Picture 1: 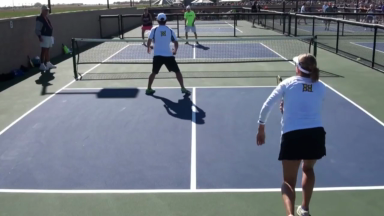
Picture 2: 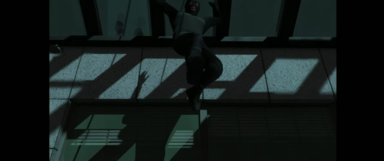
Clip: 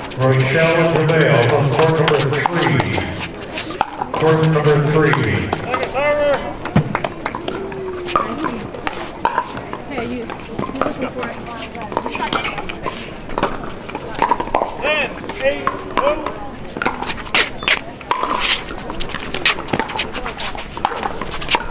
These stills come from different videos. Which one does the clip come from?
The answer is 1